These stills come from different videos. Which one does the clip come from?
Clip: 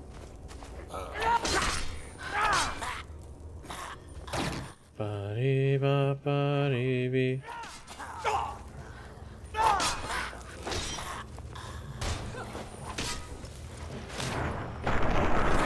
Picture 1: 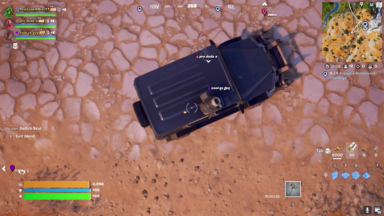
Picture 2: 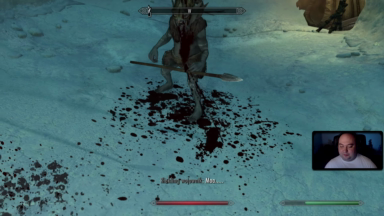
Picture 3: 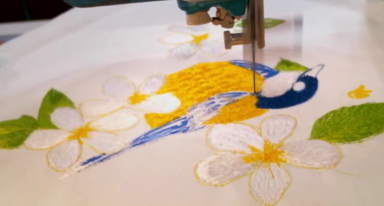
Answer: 2